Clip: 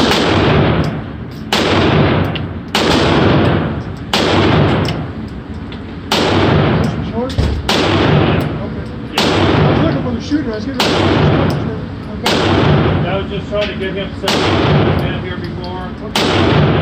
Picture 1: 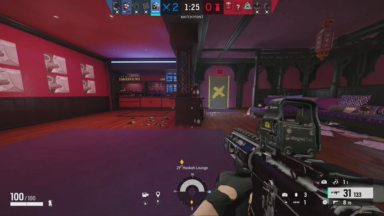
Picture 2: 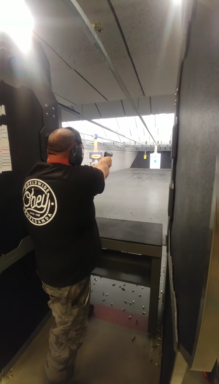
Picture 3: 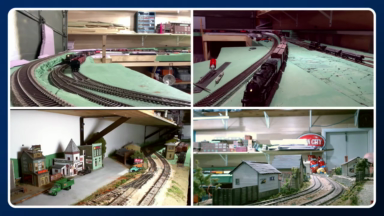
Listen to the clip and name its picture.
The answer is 2